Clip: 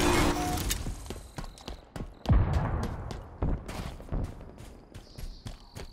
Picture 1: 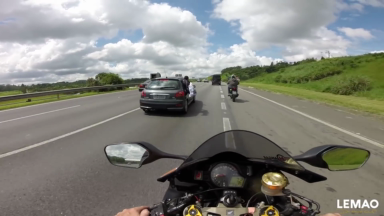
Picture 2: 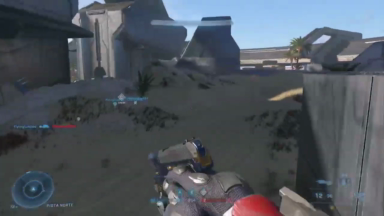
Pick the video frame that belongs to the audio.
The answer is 2